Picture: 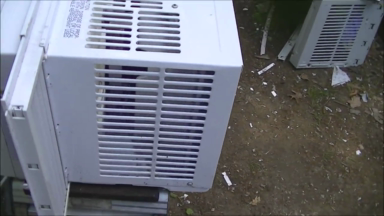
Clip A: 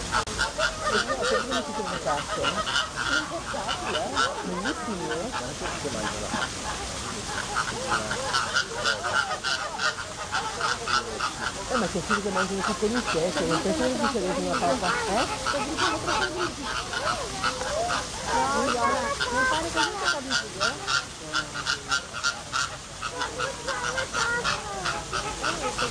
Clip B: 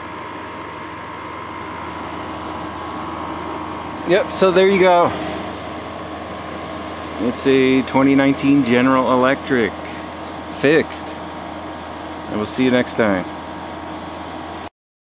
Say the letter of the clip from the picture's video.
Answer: B